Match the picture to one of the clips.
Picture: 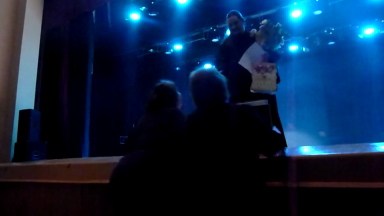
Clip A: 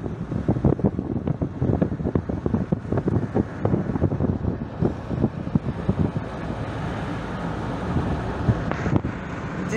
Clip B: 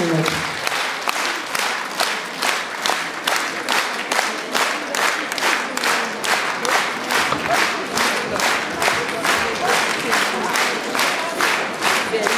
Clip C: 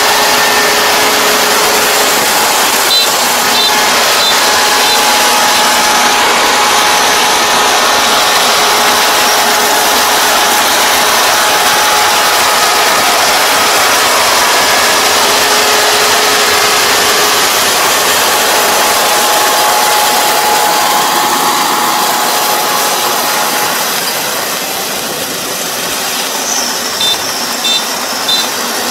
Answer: B